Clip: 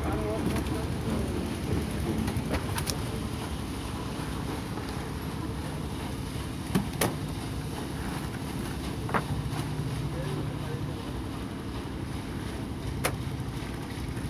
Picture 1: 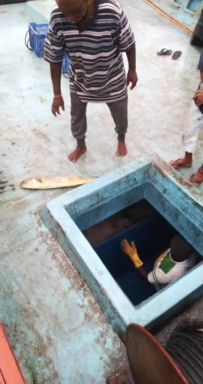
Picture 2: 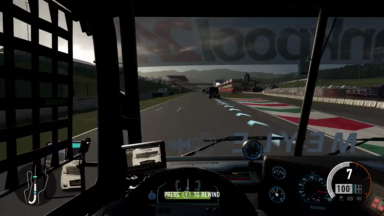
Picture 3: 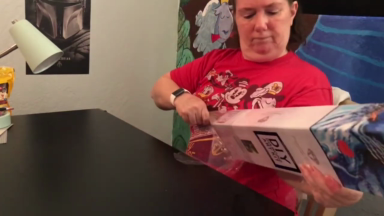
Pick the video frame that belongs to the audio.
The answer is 1